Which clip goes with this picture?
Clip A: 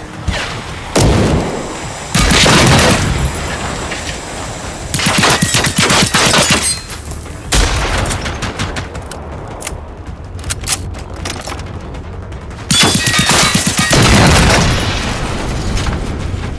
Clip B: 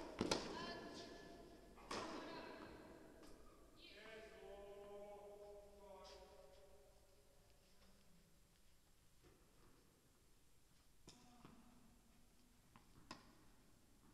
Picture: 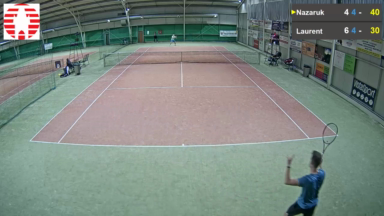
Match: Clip B